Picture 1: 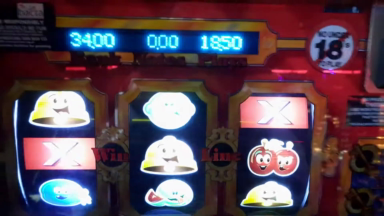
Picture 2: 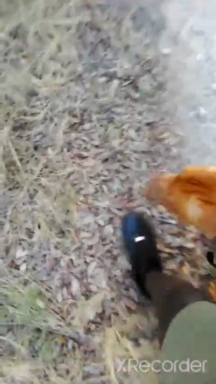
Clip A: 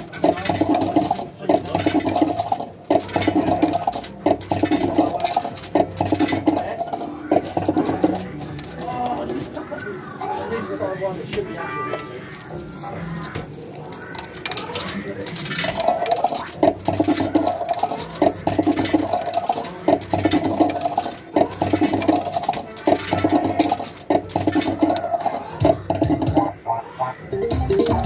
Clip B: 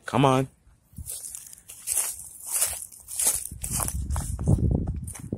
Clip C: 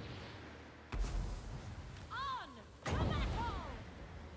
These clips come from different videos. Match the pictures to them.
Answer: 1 A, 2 B